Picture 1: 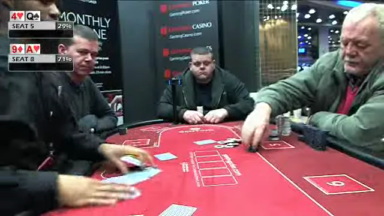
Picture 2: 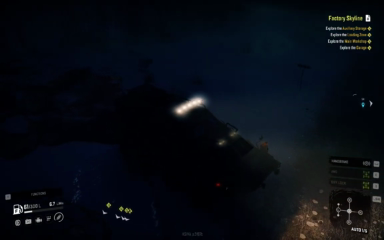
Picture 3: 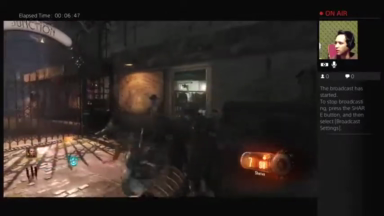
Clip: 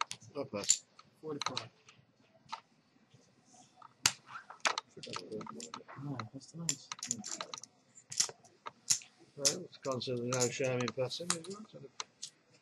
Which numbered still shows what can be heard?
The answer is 1